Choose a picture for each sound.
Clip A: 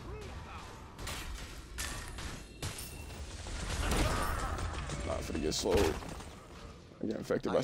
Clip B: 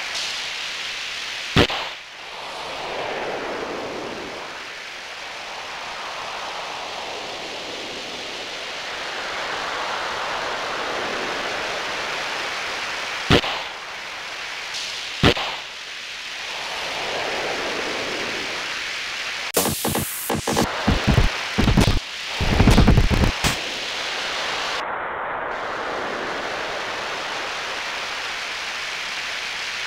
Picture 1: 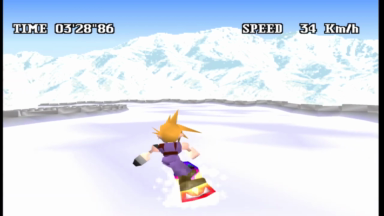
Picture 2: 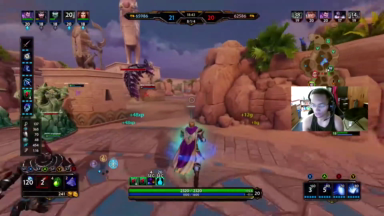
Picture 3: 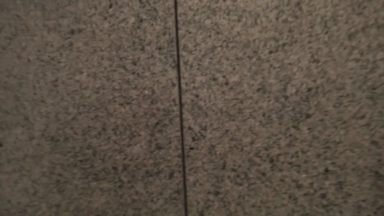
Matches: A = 2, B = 1